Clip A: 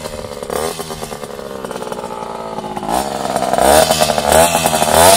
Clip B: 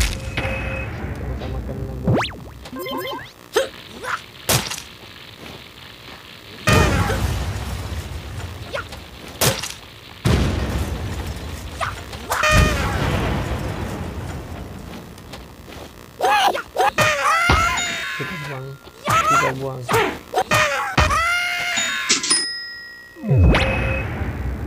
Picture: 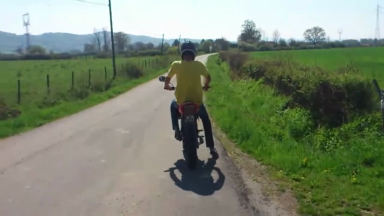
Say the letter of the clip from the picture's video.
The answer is A